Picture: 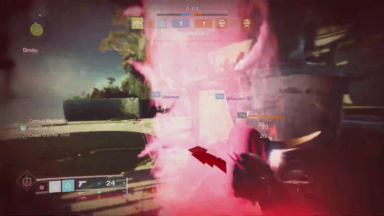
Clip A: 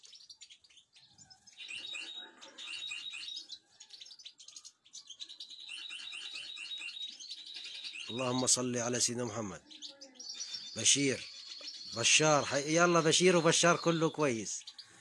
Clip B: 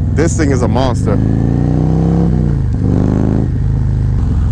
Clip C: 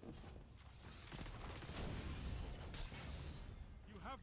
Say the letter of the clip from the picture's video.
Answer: C